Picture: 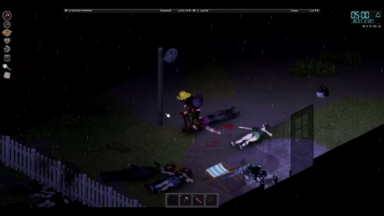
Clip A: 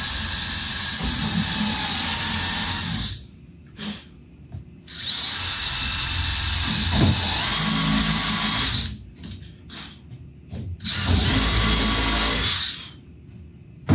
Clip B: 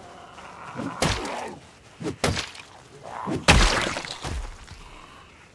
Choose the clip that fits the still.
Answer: B